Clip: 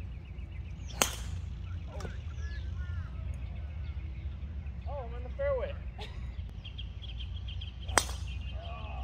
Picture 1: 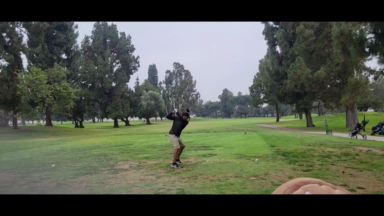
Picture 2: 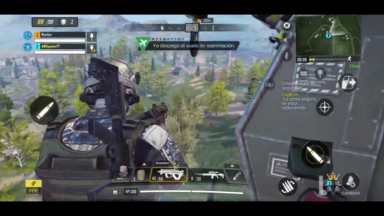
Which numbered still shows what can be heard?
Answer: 1